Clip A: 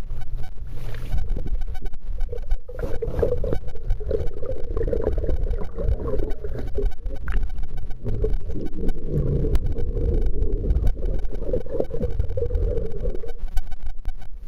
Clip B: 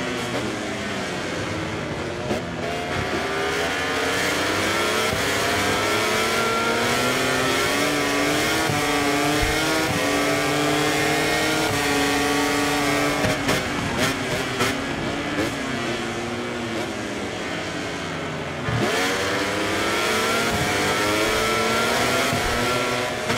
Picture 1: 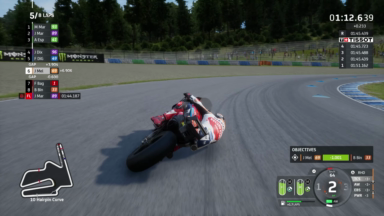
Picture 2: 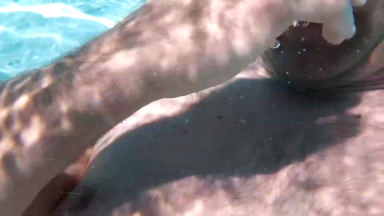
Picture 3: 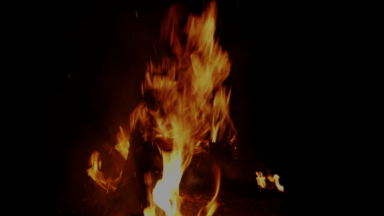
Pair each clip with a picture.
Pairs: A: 2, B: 1